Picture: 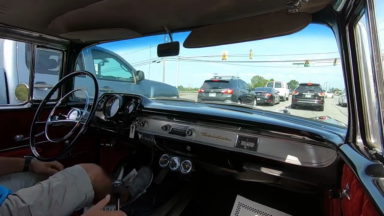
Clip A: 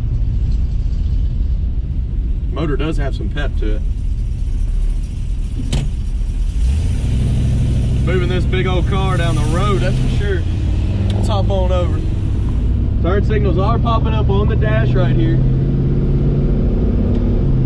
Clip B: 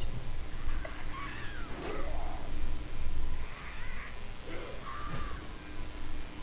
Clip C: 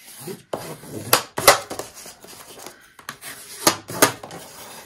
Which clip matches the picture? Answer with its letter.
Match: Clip A